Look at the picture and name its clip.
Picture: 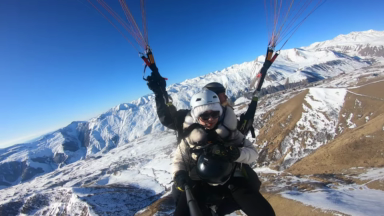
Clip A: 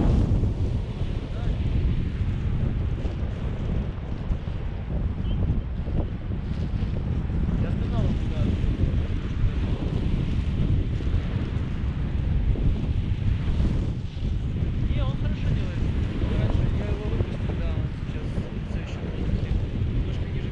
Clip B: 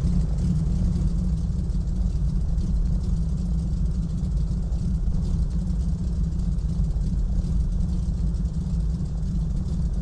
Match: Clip A